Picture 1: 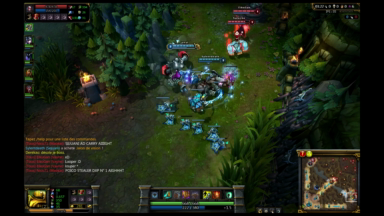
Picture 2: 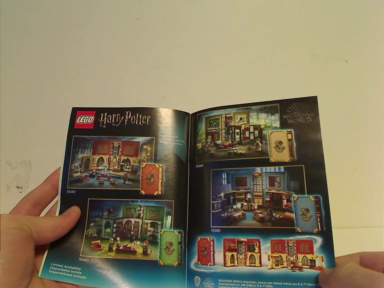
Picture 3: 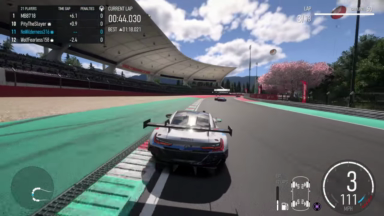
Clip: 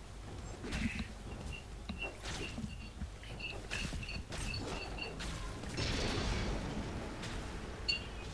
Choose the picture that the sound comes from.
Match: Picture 1